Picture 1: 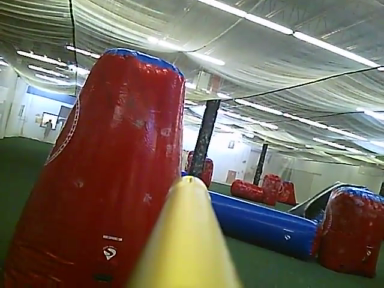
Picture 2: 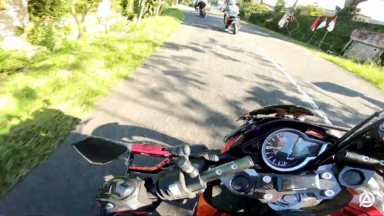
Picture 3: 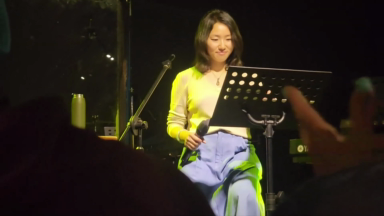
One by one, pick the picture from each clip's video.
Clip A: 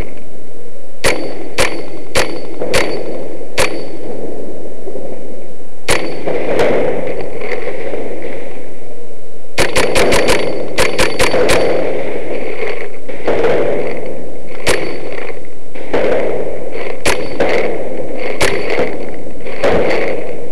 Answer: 1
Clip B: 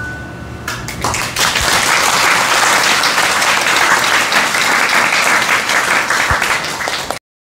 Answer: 3